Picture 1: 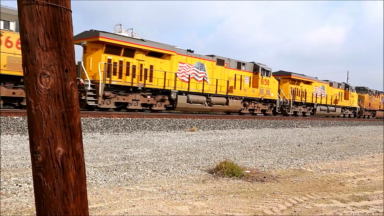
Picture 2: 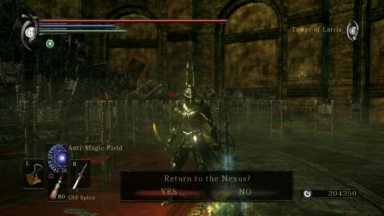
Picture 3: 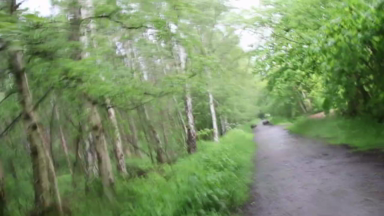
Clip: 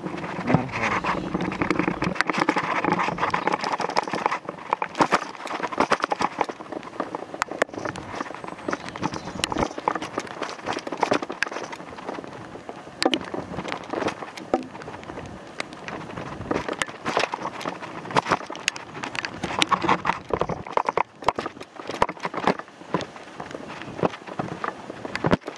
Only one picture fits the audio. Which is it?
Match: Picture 3